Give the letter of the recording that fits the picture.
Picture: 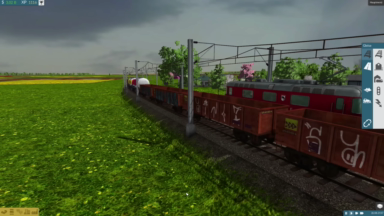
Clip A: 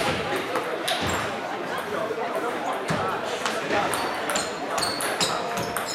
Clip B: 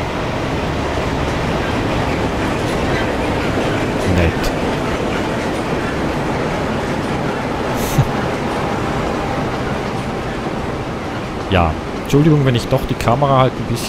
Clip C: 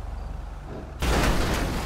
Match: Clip B